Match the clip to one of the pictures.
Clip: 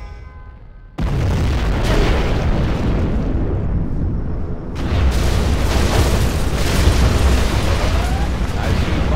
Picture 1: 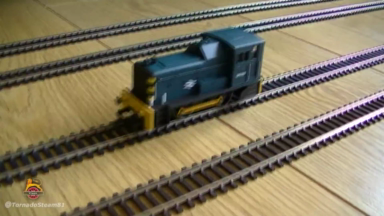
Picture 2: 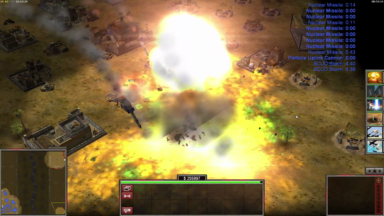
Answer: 2